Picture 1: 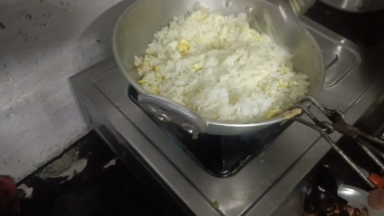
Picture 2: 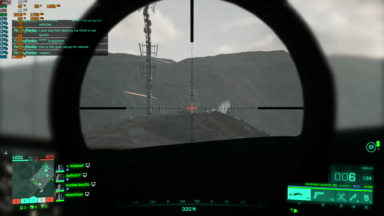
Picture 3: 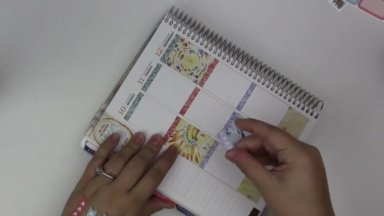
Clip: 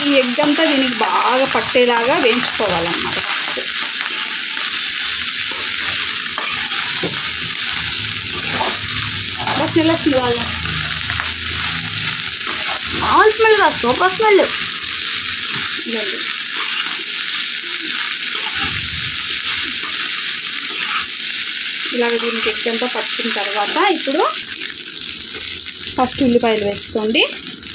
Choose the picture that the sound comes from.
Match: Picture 1